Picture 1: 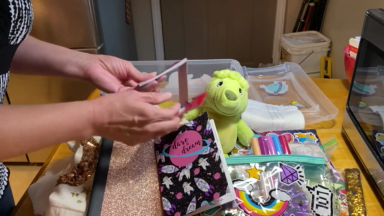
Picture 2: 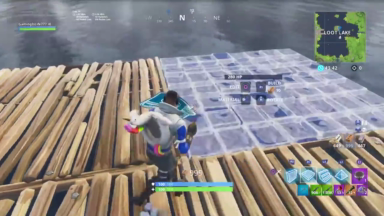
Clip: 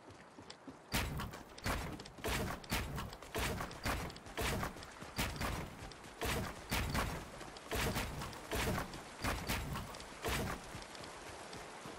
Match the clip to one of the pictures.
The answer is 2